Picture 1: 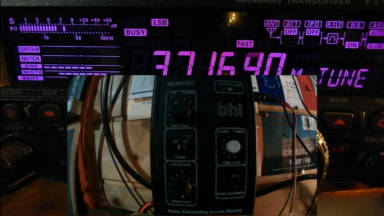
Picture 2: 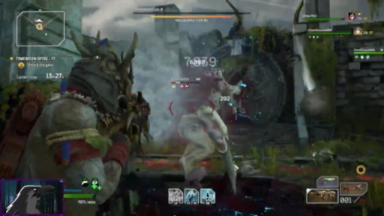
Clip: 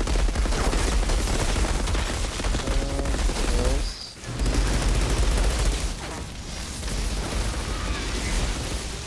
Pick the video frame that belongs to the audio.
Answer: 2